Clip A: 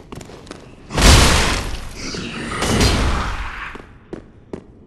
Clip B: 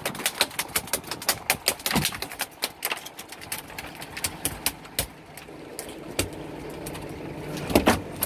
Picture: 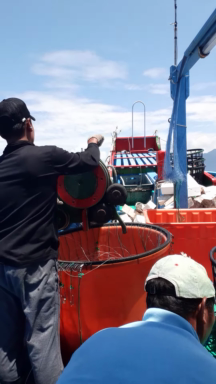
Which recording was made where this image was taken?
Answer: B